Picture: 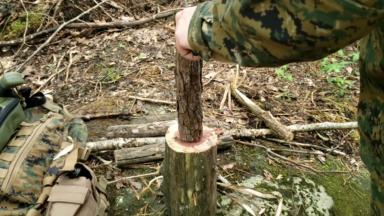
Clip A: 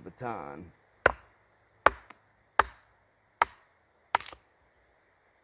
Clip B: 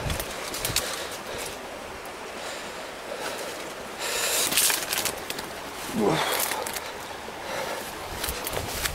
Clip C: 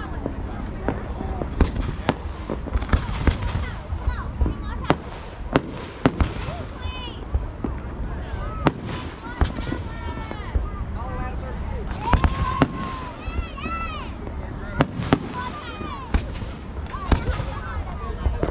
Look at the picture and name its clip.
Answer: A